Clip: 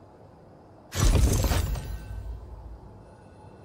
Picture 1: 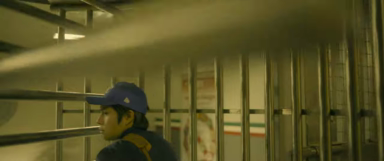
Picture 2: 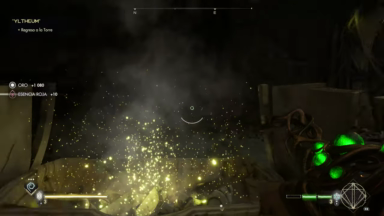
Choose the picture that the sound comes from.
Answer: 2